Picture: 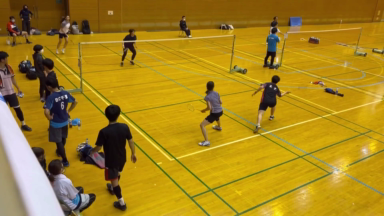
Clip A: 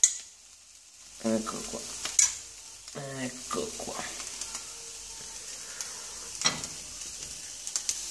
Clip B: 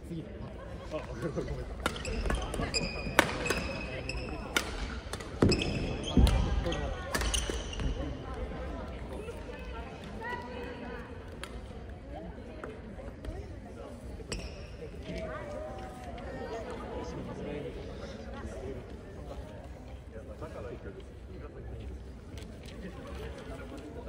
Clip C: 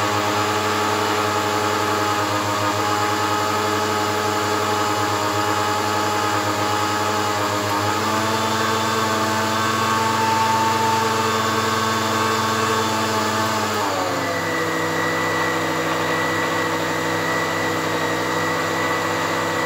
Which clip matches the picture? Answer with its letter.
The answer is B